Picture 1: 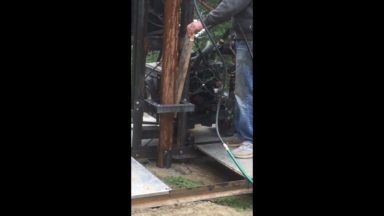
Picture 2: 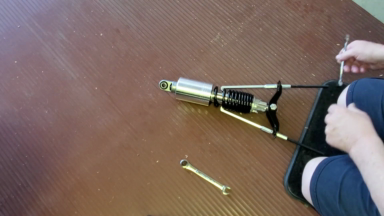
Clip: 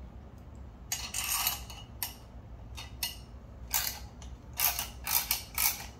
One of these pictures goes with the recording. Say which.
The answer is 2